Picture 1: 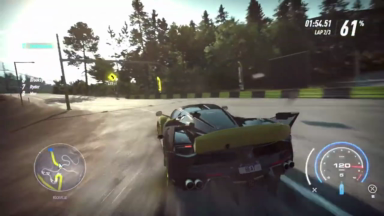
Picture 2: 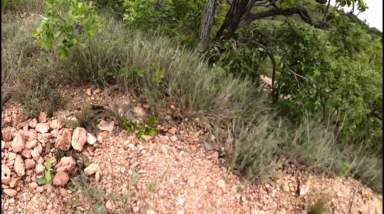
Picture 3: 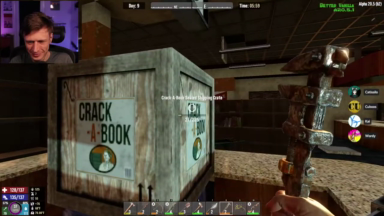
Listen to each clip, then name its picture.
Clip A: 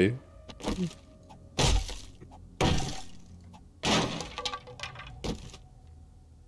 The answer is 3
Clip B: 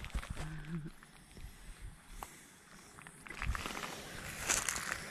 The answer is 2